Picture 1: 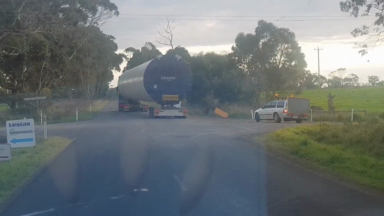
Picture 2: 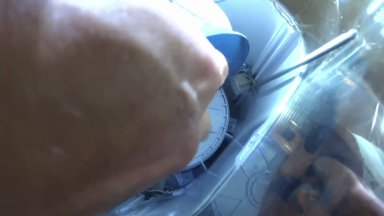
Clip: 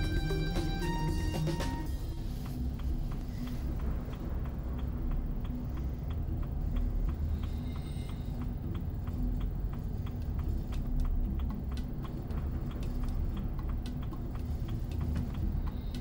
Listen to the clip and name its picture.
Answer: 1